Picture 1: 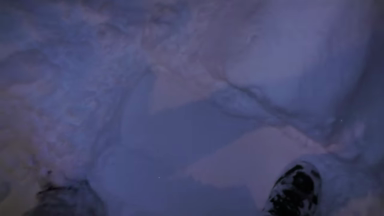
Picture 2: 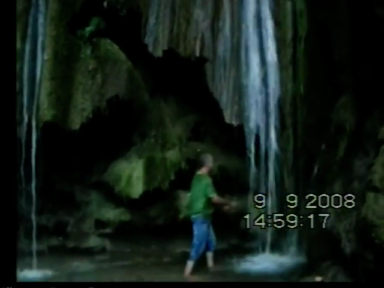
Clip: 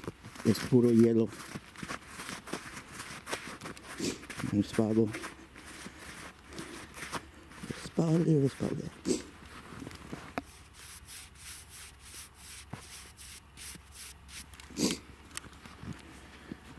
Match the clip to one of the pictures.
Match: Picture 1